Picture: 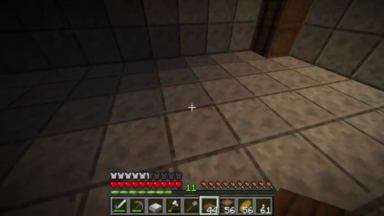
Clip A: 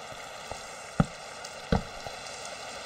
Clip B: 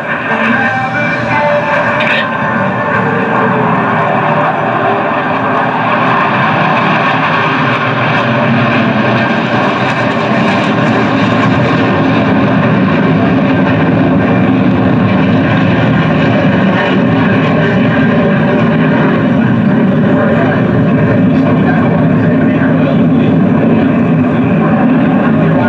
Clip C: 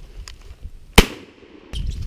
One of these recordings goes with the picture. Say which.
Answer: A